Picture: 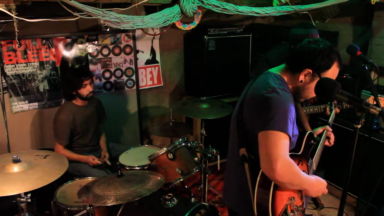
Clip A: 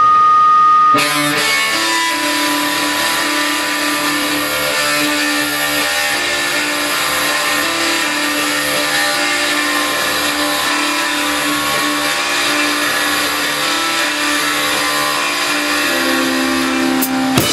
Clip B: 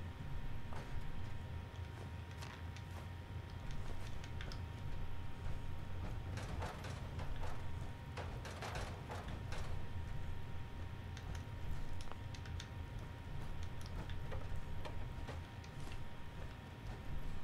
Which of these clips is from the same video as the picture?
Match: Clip A